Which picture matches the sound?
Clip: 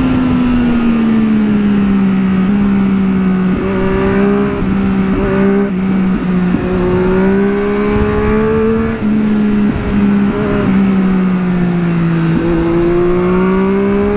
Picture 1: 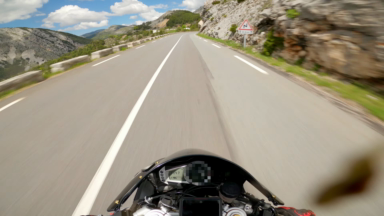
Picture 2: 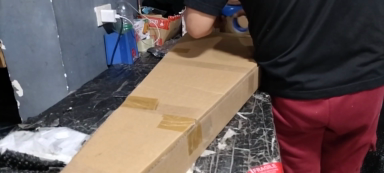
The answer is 1